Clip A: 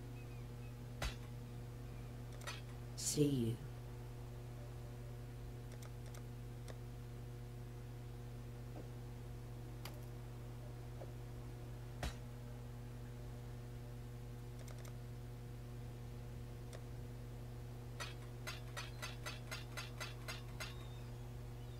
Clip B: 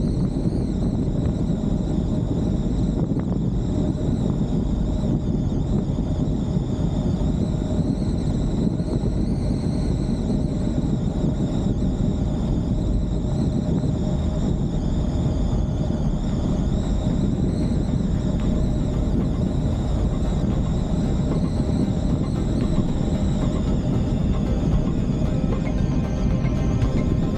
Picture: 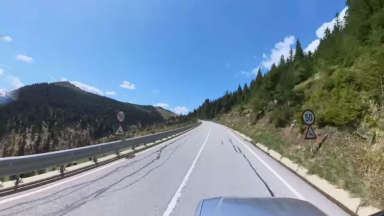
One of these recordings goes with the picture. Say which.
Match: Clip B